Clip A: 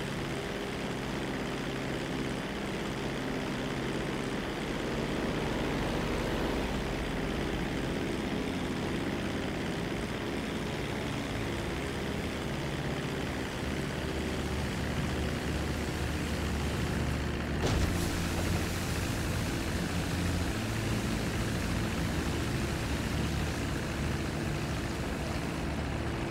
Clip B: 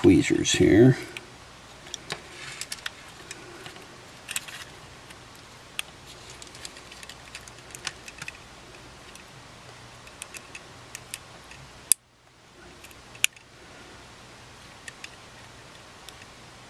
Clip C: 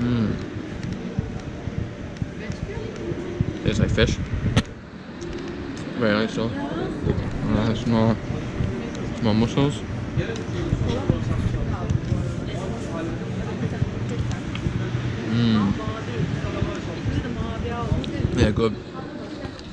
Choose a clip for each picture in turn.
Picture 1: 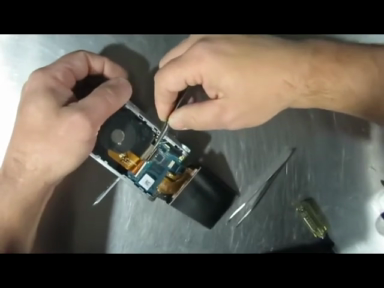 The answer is B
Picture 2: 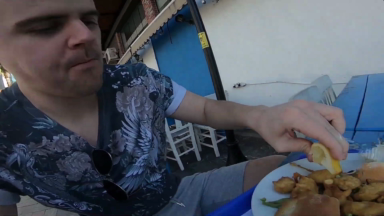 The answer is C